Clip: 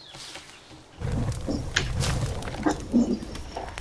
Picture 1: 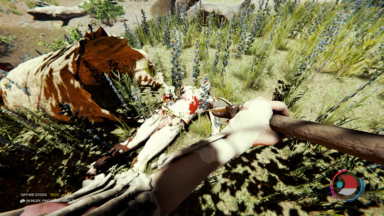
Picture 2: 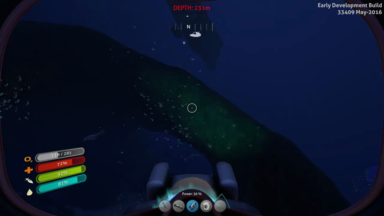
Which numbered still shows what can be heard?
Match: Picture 1